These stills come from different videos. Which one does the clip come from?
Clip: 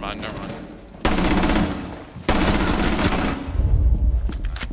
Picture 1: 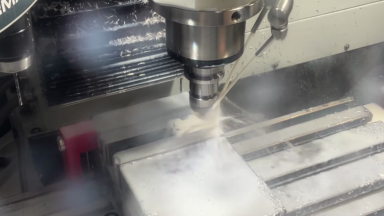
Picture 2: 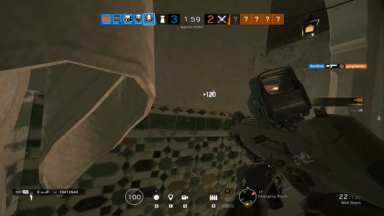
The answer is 2